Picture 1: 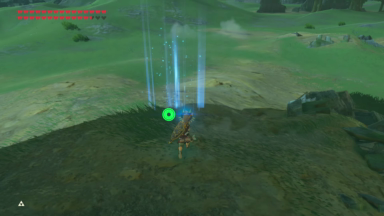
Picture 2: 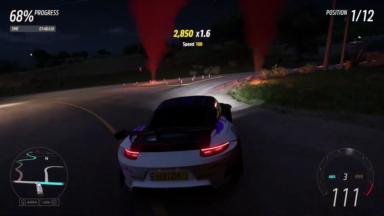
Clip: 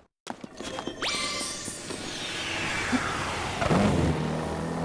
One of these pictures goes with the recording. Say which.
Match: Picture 1